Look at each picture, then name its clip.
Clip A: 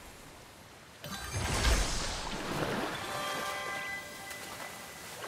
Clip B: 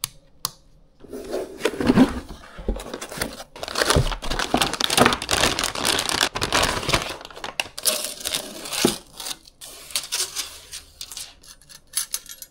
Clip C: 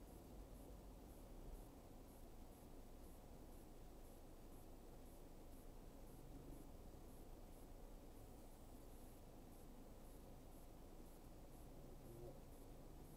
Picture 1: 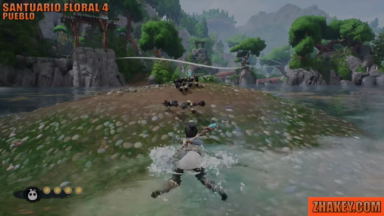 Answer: A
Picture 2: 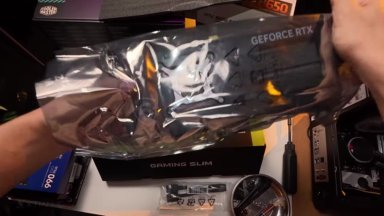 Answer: B